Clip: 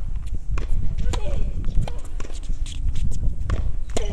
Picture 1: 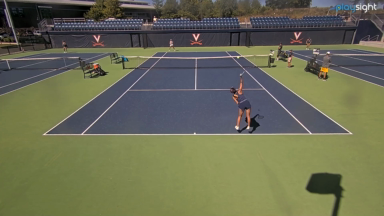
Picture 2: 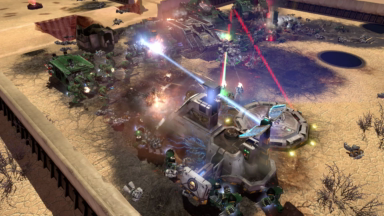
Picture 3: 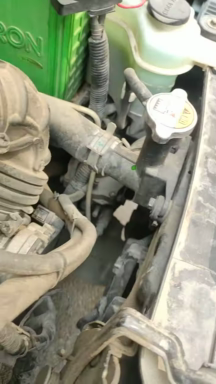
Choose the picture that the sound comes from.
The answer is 1